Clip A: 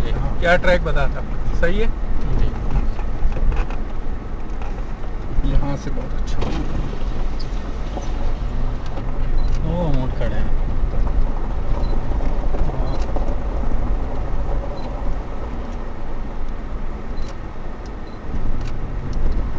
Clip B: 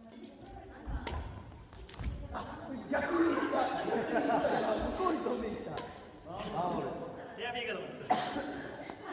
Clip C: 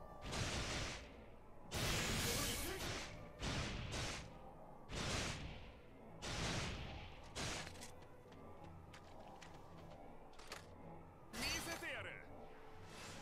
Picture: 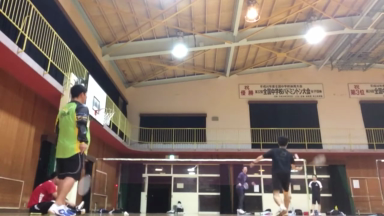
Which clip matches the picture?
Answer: B